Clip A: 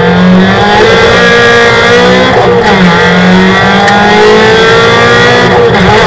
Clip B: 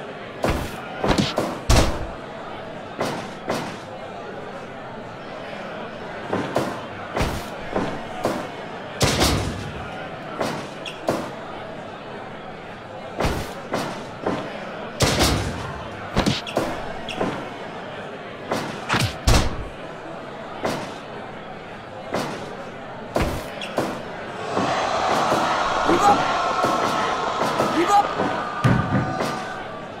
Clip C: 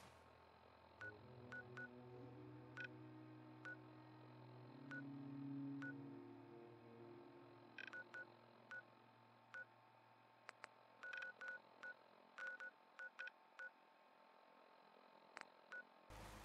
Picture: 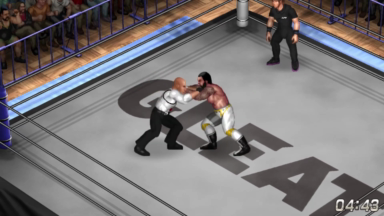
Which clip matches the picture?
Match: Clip B